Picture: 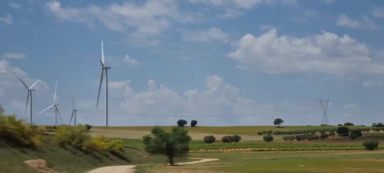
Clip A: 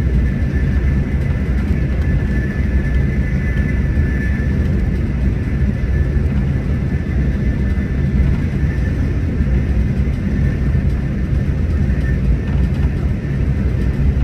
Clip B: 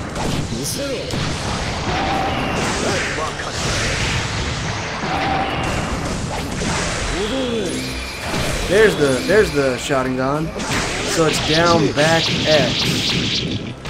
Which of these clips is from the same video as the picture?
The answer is A